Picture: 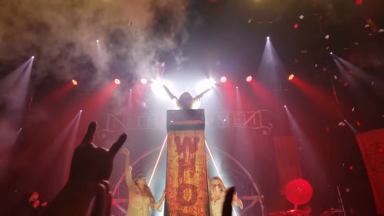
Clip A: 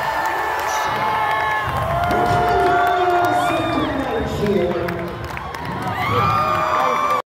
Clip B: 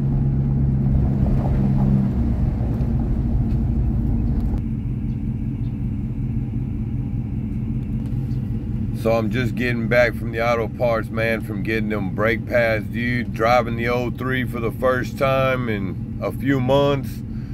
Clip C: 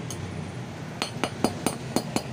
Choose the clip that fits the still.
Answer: A